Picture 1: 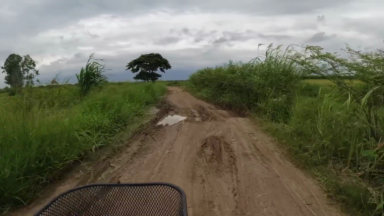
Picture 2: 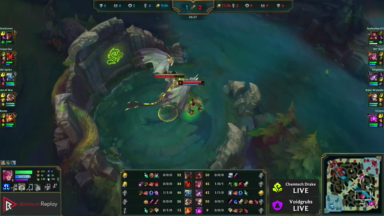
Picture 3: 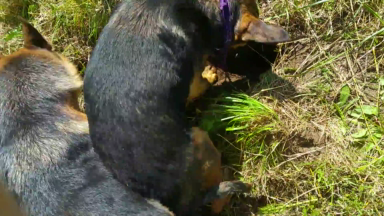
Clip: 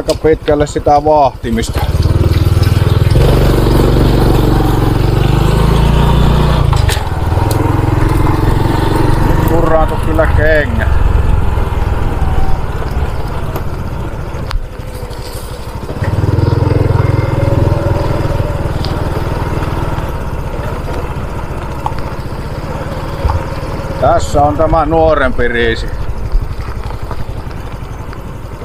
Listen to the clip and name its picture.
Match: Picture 1